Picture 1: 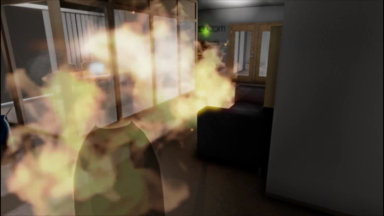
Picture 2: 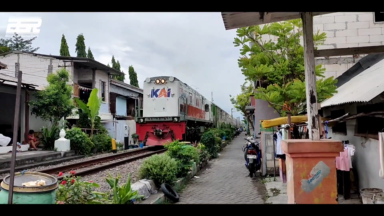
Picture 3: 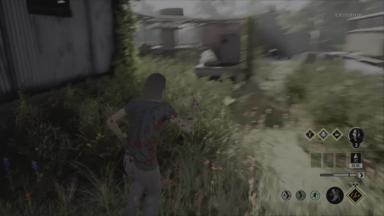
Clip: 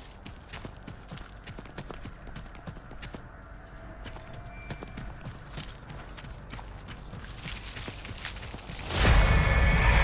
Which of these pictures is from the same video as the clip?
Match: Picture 3